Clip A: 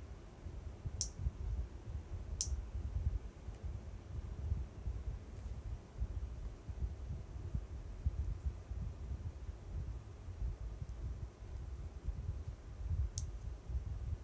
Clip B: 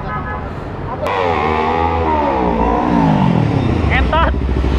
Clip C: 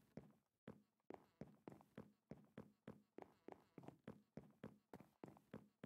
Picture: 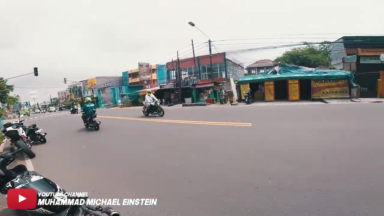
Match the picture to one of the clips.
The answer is B